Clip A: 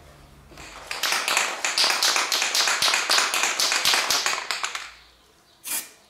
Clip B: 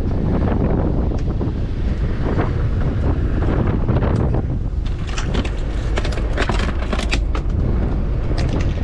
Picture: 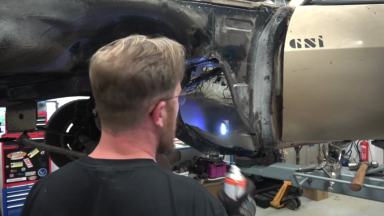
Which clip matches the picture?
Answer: A